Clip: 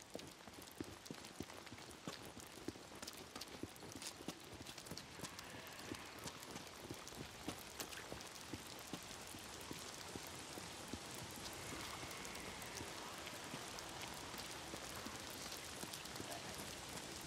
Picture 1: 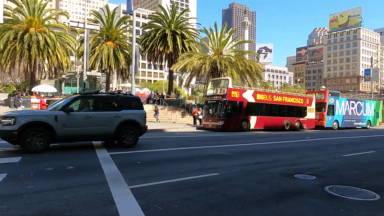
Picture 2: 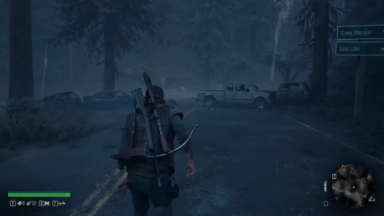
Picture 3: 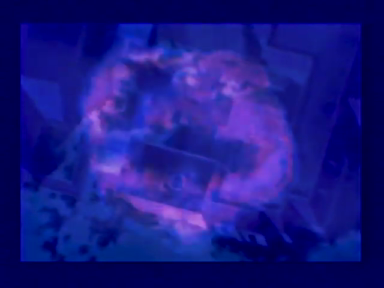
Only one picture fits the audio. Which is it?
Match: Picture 2